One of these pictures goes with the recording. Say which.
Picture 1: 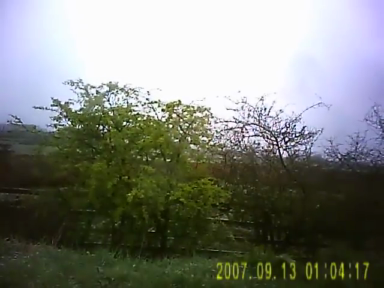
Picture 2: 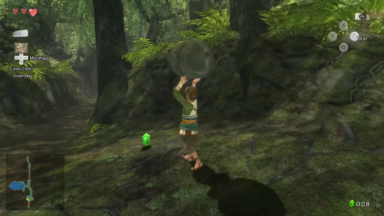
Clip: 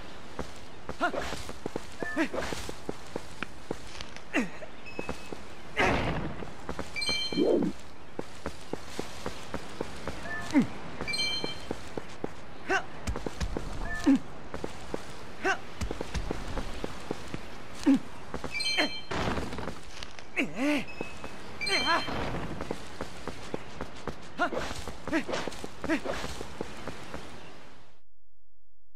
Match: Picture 2